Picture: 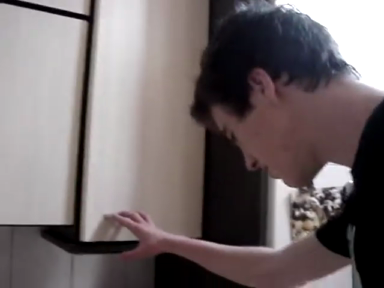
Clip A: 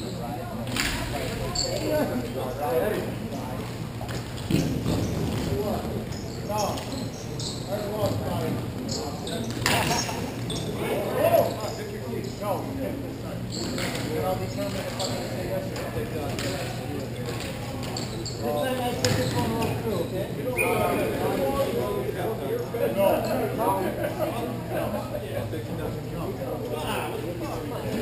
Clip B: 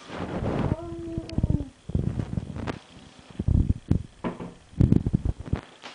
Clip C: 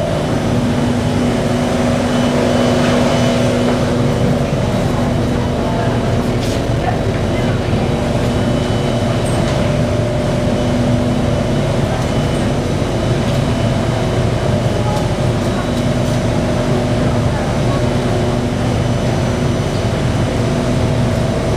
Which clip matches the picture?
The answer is B